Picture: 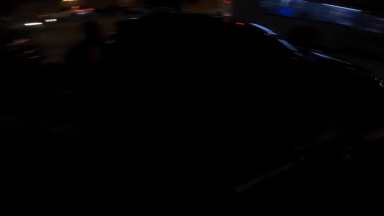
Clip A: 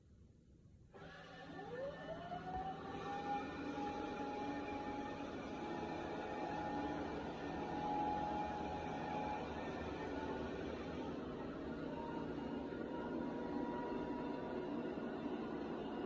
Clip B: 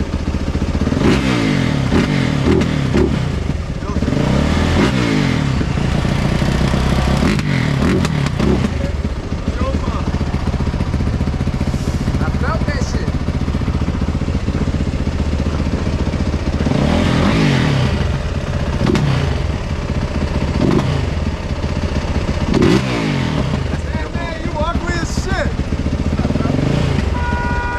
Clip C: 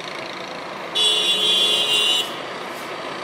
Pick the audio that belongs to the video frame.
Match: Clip B